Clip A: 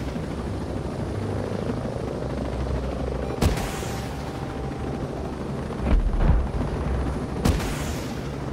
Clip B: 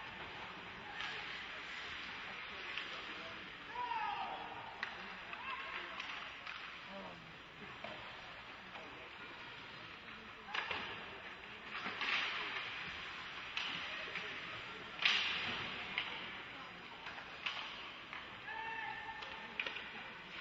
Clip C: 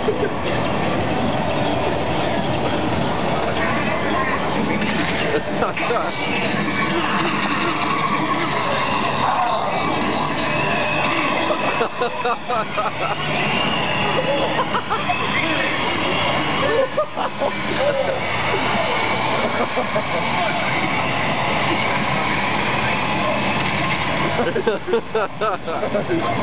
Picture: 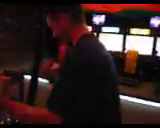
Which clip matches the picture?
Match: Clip C